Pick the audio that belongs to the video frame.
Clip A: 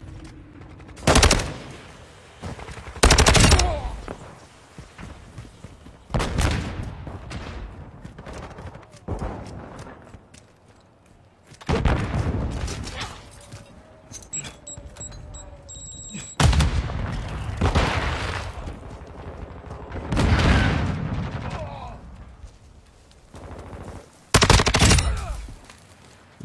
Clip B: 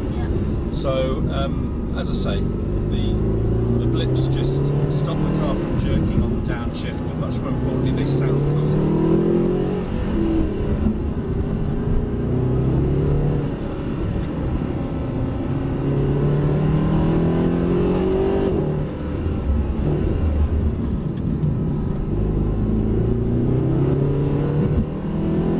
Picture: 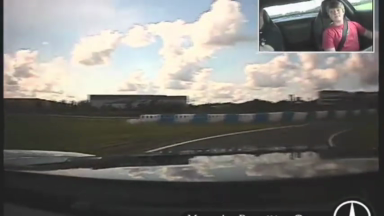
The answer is B